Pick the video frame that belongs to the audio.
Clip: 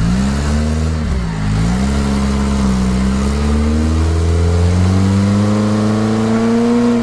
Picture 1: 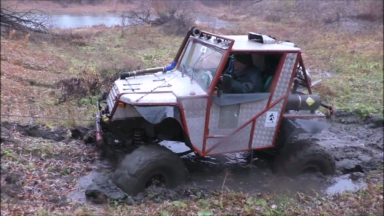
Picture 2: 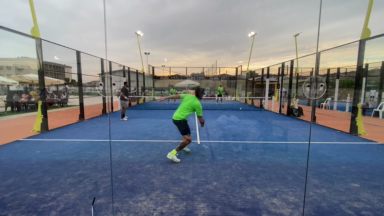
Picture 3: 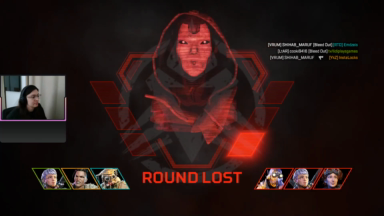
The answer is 1